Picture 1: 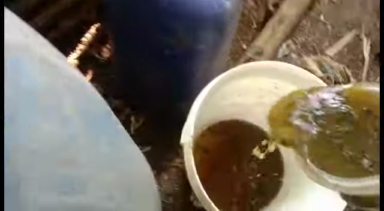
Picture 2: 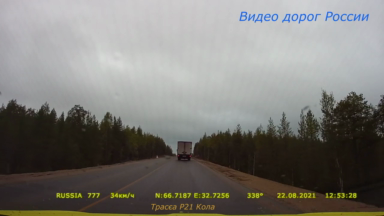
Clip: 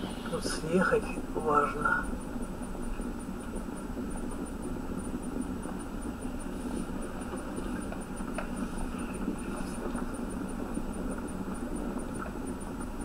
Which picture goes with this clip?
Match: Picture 2